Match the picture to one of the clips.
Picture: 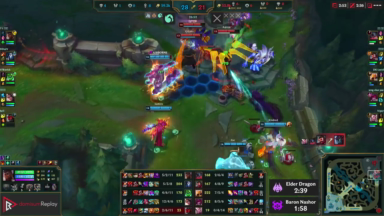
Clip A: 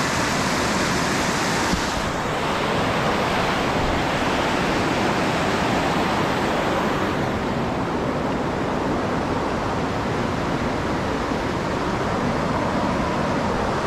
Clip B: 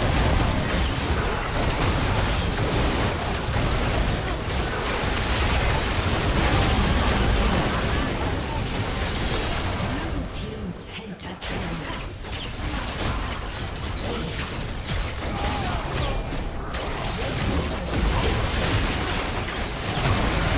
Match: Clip B